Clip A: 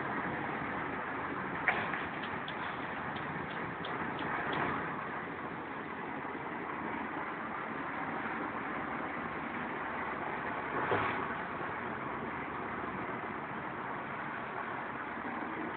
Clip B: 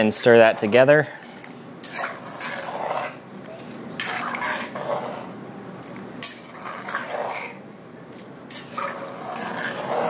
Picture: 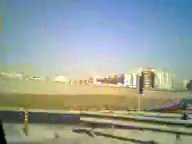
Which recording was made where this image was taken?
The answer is A